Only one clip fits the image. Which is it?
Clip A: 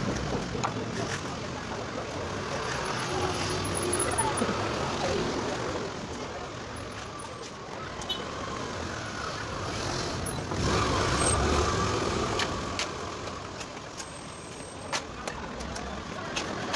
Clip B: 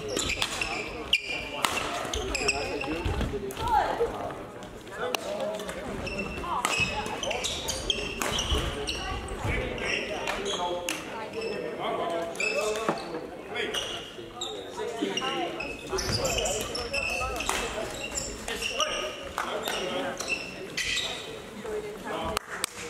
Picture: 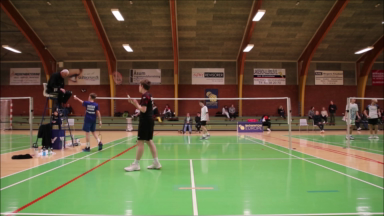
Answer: B